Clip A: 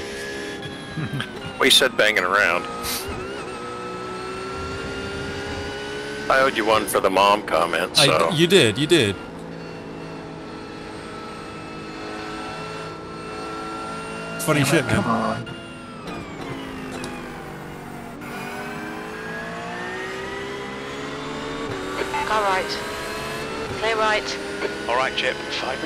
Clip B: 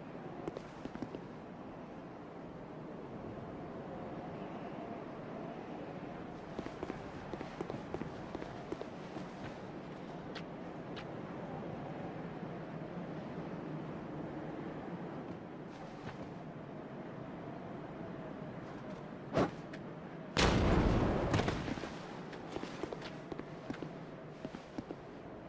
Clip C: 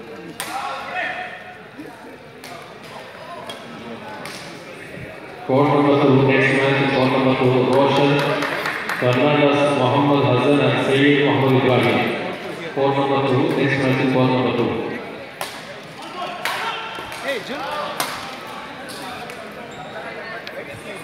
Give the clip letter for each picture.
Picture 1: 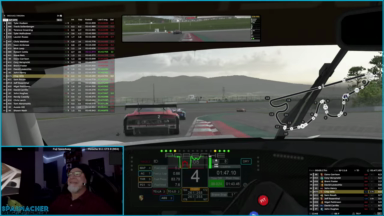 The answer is A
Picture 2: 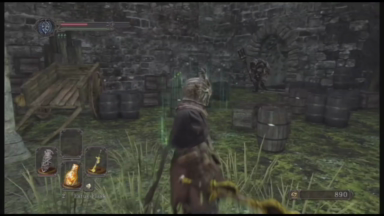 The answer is B